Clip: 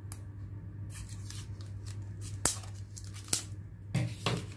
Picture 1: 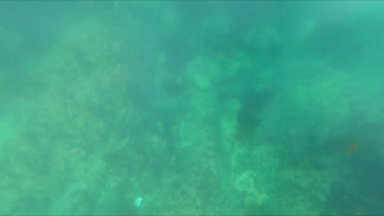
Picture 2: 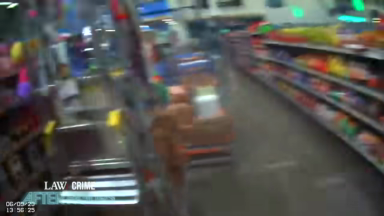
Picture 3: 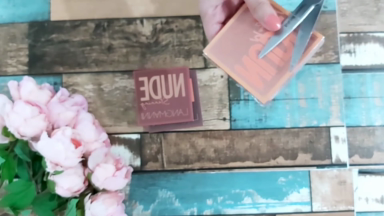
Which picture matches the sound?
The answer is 3